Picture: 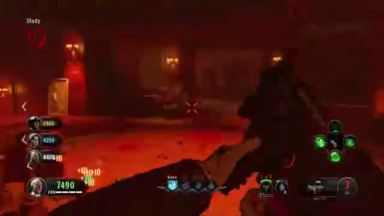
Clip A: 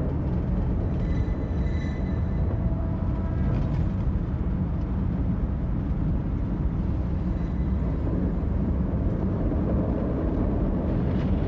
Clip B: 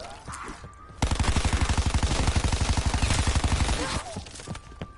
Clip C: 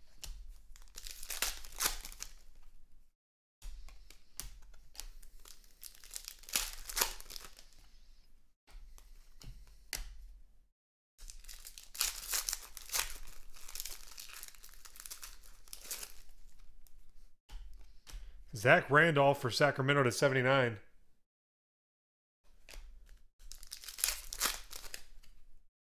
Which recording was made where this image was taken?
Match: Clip B